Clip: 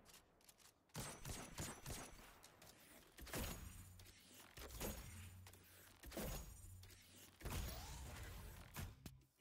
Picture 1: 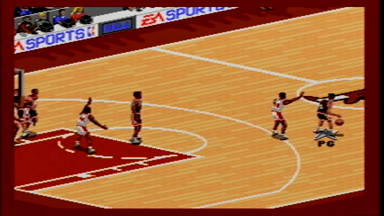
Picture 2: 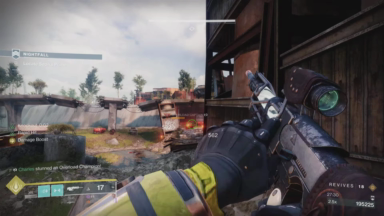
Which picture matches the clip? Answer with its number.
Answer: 2